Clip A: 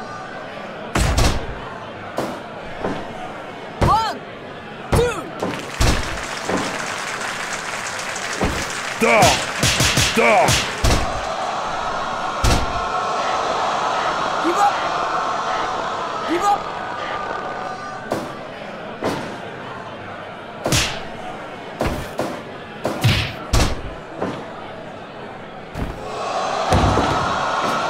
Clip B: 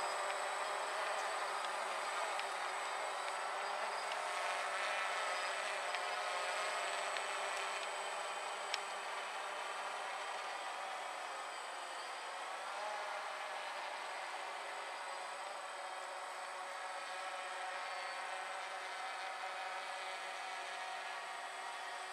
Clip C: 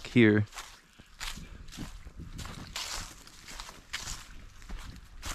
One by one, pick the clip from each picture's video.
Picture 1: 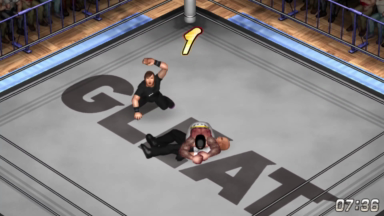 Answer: A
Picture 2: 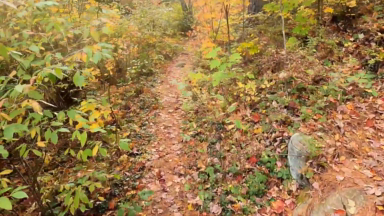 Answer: C